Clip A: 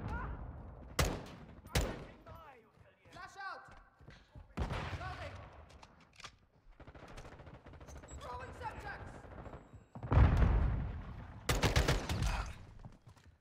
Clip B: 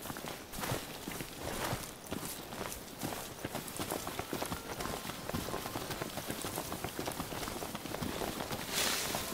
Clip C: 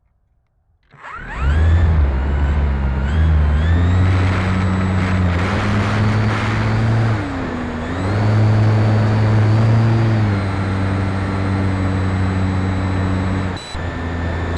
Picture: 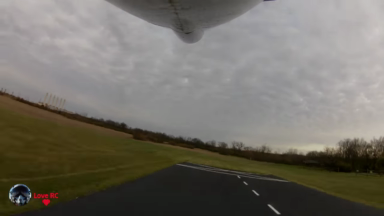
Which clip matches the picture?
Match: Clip C